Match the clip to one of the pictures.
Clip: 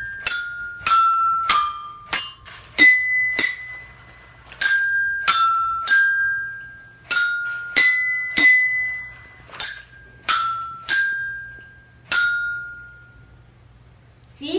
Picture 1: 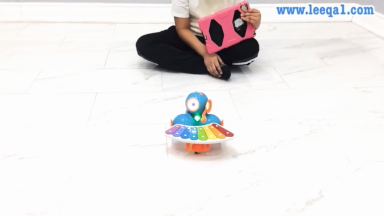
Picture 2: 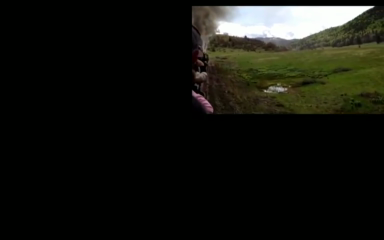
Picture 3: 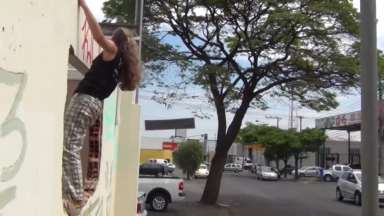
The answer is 1